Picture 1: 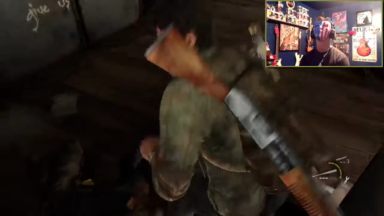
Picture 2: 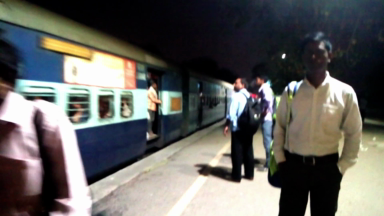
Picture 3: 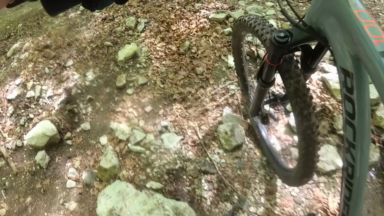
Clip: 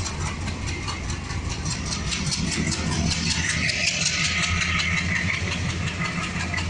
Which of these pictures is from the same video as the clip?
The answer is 2